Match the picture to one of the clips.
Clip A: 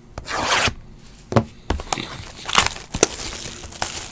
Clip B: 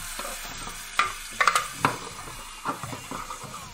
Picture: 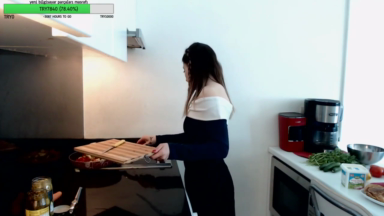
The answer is B